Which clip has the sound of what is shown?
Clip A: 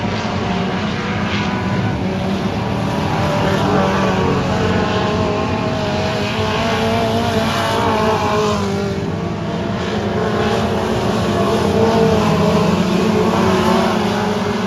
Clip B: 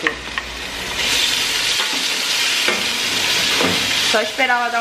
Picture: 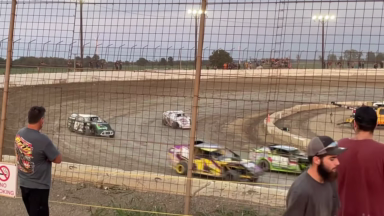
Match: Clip A